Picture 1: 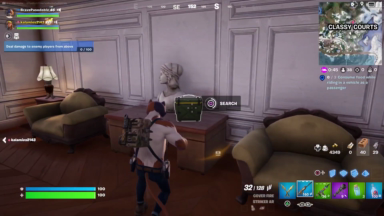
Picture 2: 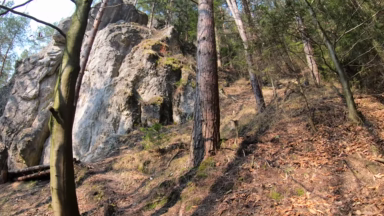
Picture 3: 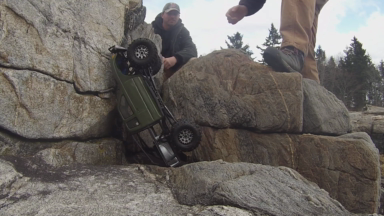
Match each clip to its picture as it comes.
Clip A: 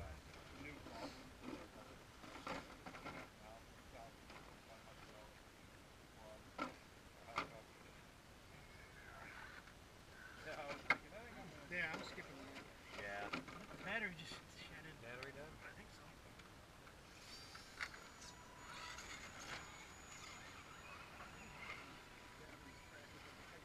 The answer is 3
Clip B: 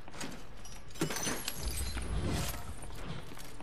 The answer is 1